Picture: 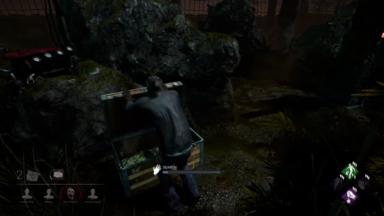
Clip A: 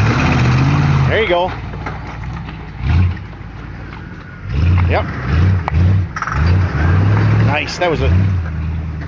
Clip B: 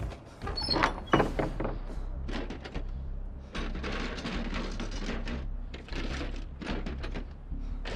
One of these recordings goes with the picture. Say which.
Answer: B